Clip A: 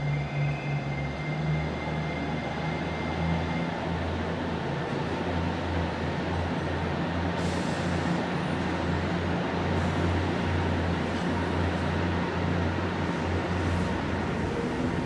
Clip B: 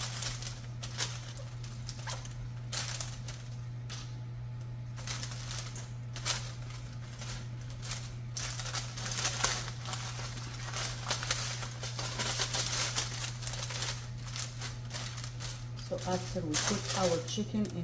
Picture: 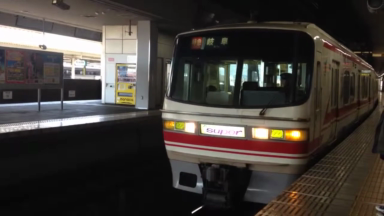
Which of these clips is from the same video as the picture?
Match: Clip A